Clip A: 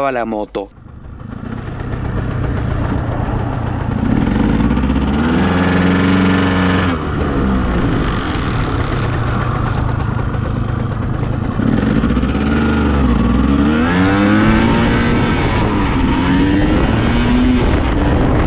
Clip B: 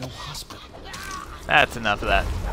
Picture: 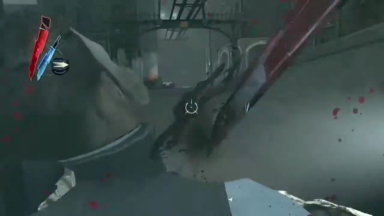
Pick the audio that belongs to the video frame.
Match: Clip B